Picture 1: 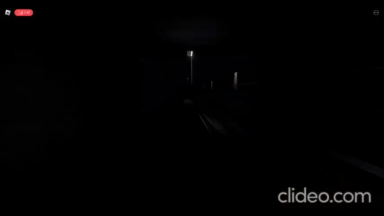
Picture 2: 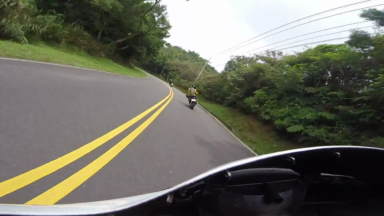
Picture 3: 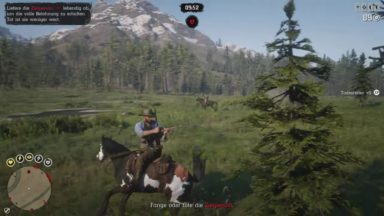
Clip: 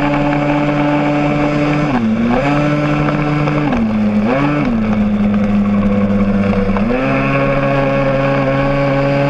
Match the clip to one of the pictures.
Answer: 2